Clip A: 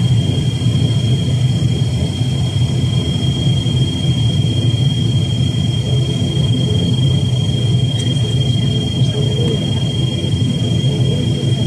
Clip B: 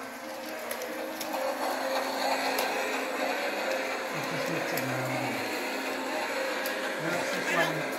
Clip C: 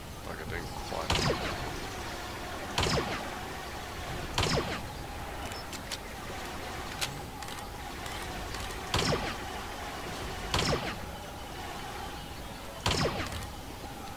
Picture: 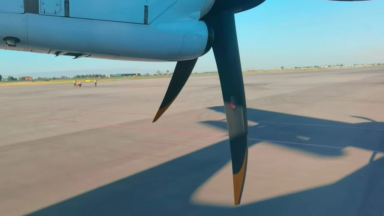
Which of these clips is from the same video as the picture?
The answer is A